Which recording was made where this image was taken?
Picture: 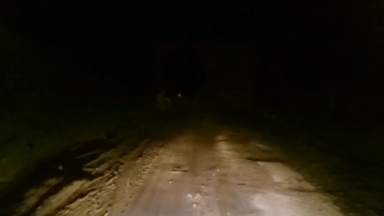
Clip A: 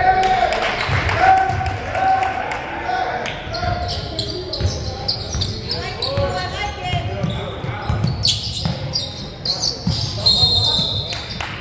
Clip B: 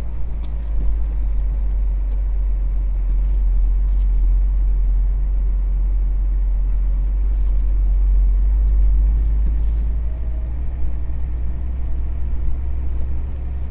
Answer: B